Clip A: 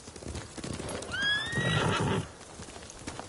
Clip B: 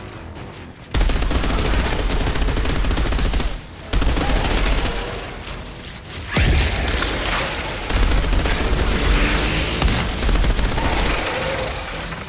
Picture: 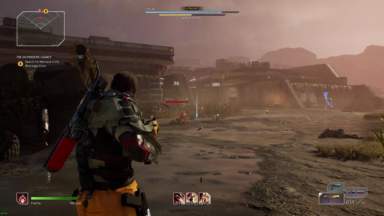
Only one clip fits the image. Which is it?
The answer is B